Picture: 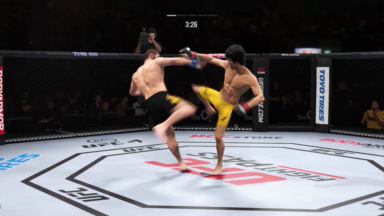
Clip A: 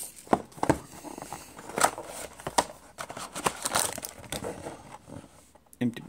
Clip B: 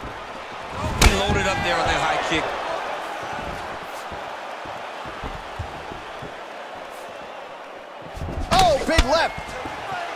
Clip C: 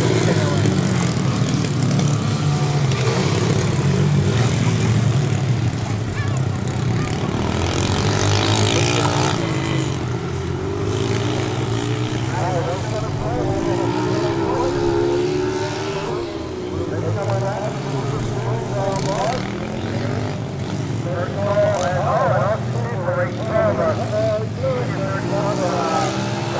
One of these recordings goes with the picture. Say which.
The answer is B